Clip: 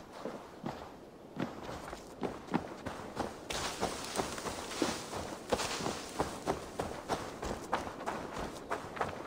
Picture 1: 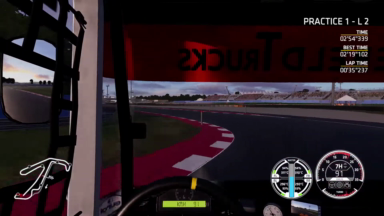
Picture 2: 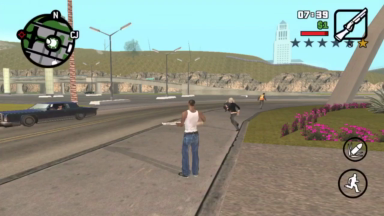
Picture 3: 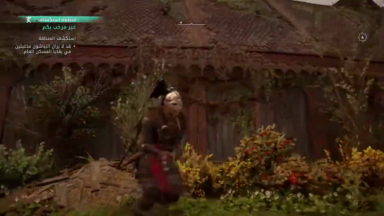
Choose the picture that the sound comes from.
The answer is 3